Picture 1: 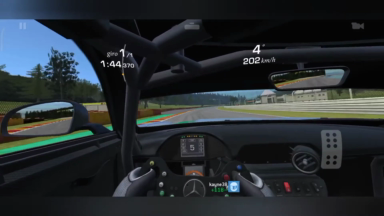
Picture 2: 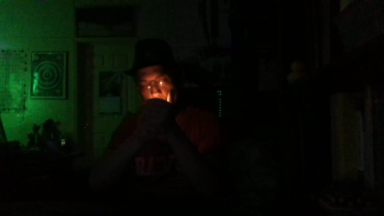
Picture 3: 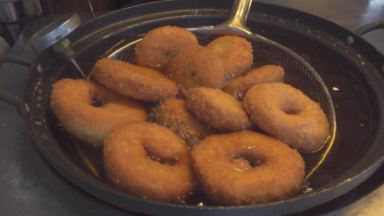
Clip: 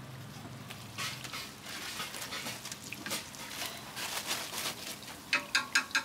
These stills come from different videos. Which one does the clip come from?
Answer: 3